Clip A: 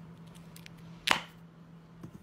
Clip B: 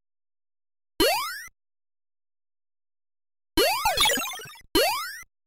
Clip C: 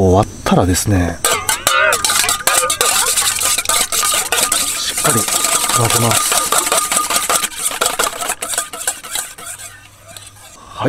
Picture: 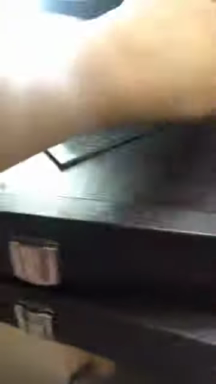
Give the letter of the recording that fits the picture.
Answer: A